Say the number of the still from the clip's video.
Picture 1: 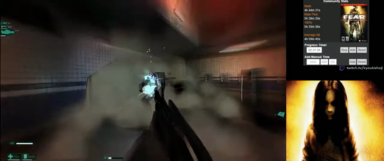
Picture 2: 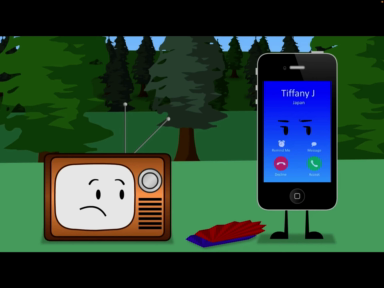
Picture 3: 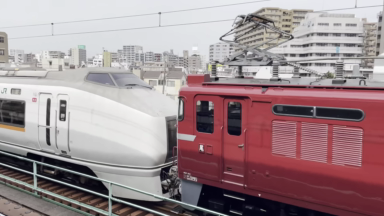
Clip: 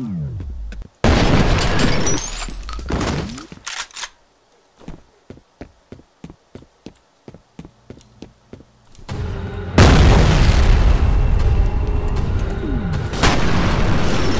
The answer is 1